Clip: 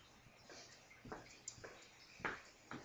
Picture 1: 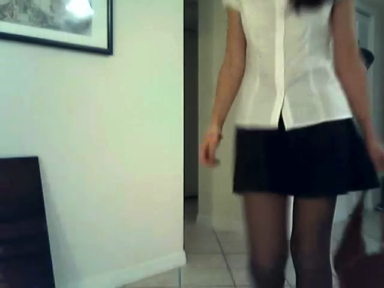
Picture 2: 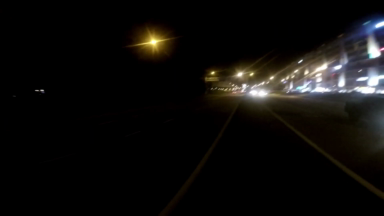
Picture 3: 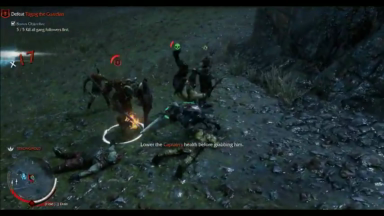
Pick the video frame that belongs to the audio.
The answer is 1